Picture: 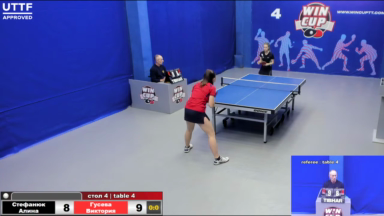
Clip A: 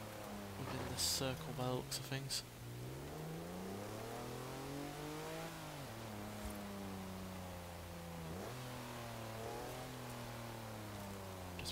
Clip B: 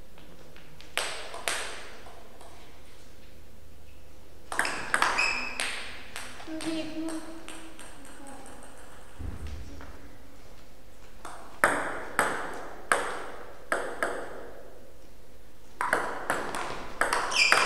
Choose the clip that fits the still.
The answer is B